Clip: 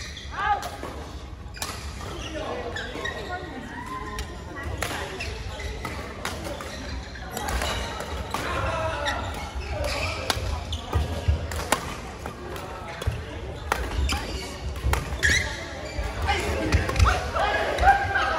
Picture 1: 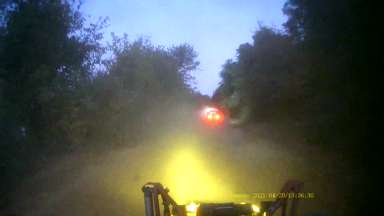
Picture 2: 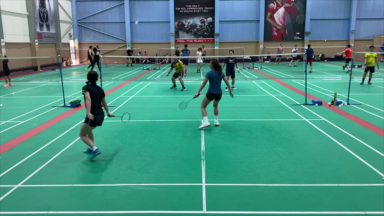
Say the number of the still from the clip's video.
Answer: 2